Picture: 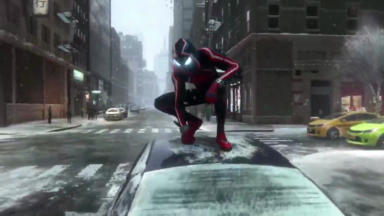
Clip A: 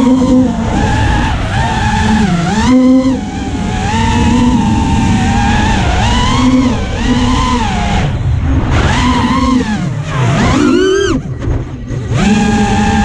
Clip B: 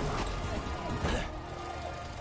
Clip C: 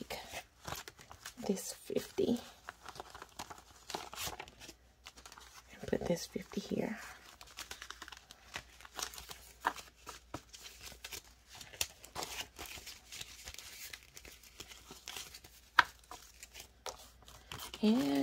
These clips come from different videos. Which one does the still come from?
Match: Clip B